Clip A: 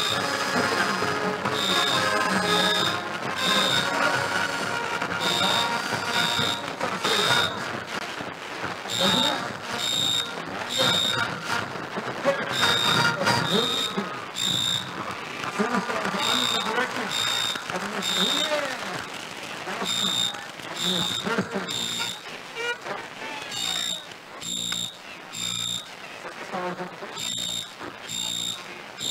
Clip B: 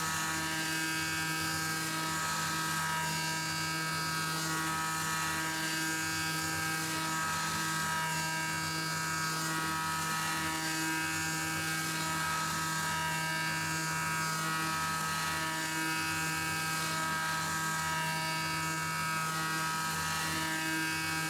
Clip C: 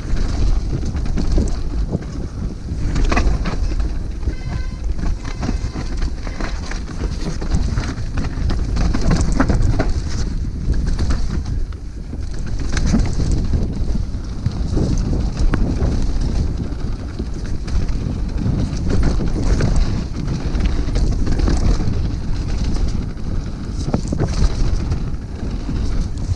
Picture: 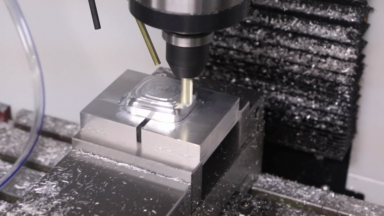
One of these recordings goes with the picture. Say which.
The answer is B